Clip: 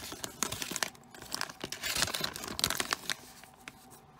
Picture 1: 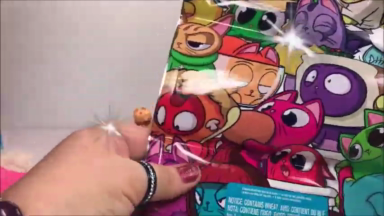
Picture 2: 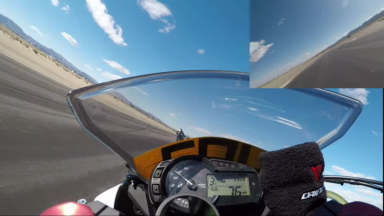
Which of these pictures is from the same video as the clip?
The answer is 1